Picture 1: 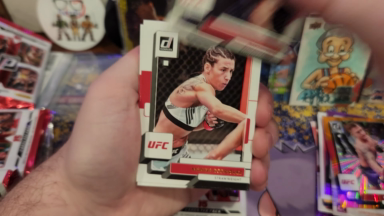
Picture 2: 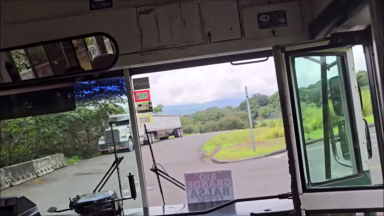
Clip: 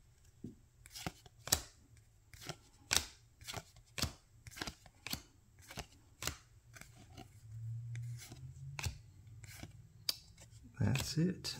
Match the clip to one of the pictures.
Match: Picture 1